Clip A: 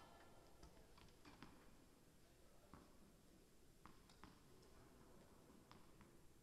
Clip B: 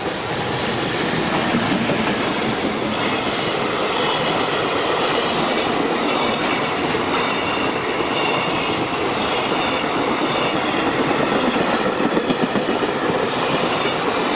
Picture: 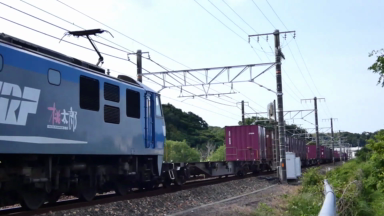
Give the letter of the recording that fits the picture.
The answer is B